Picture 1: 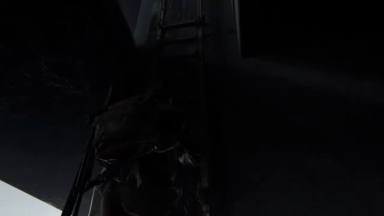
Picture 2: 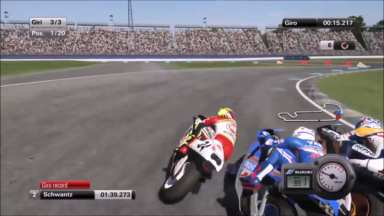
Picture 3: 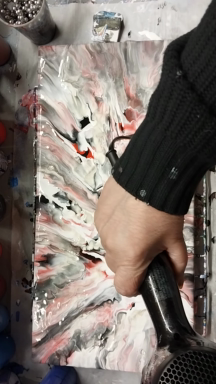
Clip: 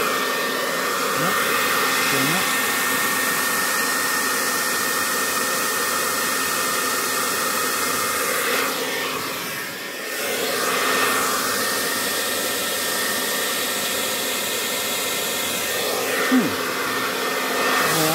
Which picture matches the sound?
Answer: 3